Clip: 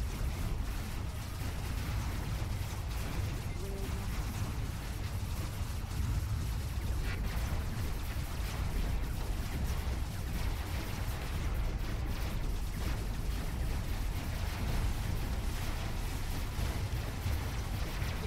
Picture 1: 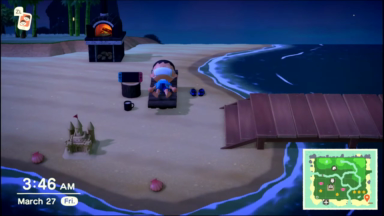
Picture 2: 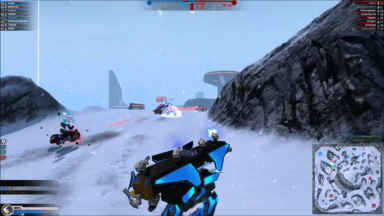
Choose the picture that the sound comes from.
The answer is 2